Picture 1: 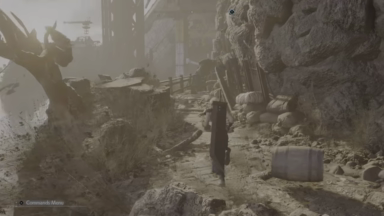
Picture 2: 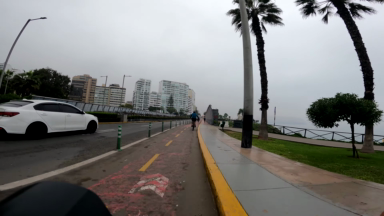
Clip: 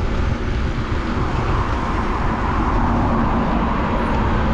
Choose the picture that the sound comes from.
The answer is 2